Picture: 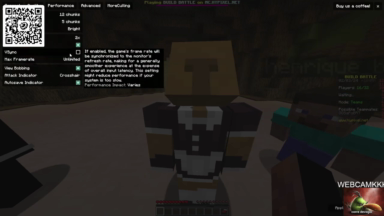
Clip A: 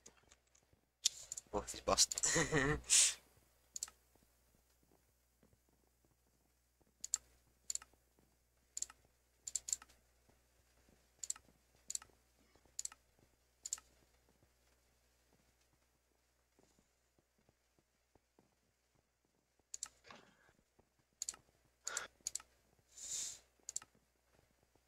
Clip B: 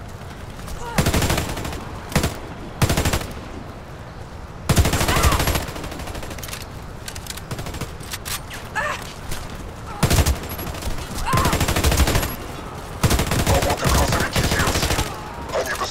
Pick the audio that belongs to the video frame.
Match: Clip A